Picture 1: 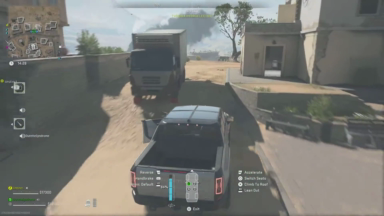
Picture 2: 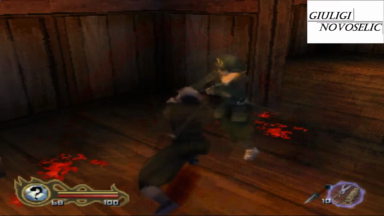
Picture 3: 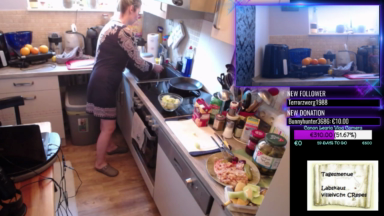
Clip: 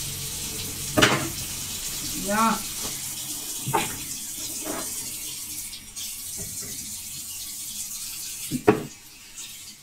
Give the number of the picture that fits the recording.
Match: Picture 3